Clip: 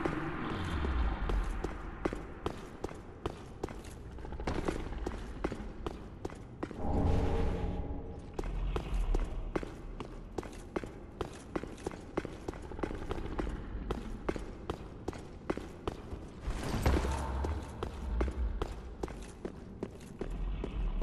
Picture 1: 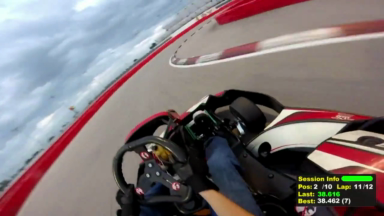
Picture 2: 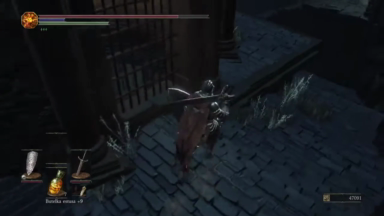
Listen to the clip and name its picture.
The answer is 2